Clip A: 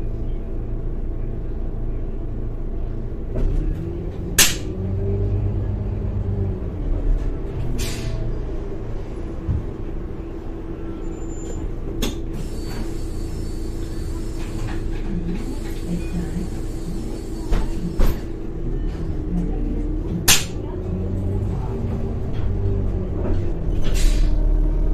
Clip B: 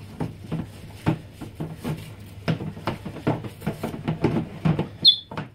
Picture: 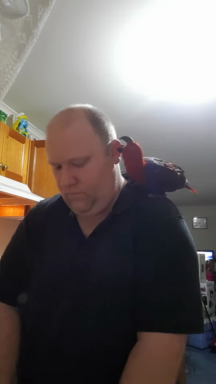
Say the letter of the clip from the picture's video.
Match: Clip B